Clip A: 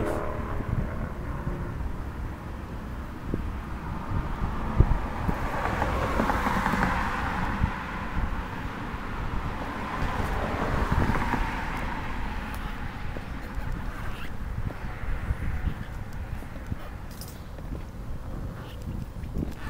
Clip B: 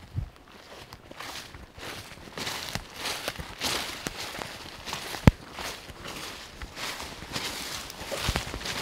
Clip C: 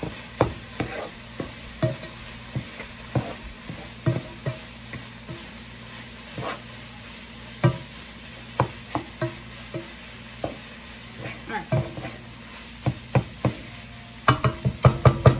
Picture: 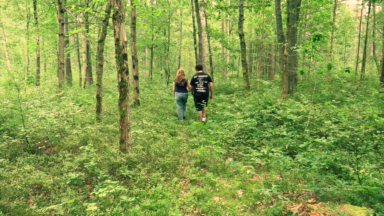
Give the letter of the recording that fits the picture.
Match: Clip B